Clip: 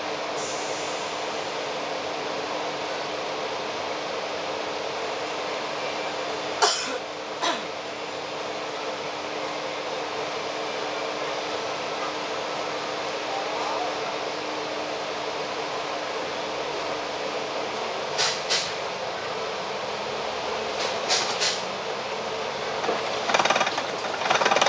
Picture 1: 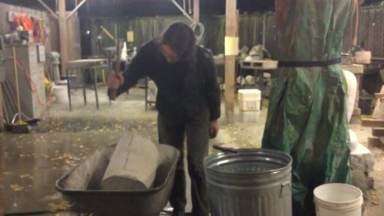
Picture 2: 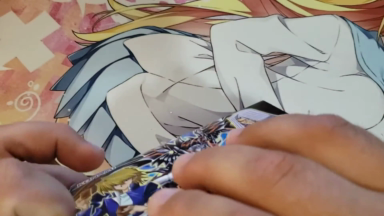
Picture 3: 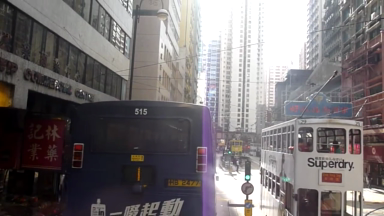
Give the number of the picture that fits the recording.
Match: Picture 3